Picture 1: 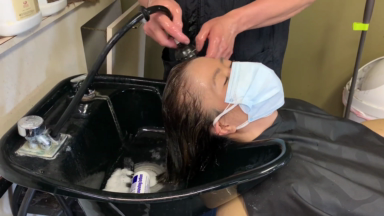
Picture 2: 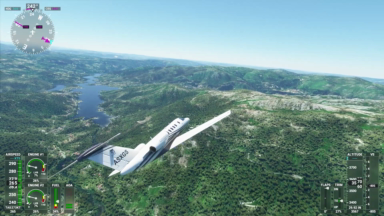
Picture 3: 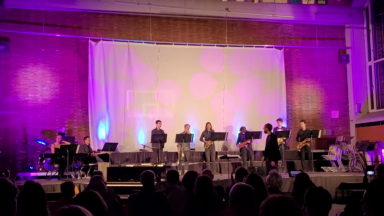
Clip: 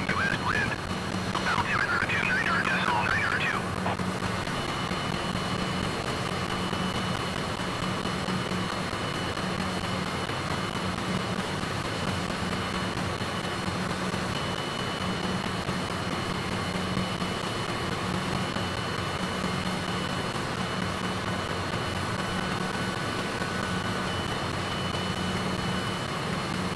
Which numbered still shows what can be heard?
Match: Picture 2